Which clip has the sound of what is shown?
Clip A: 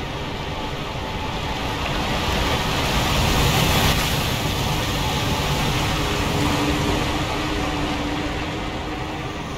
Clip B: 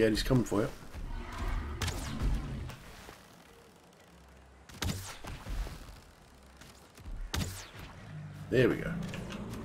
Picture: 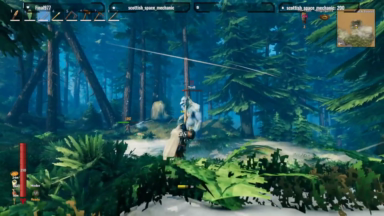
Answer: B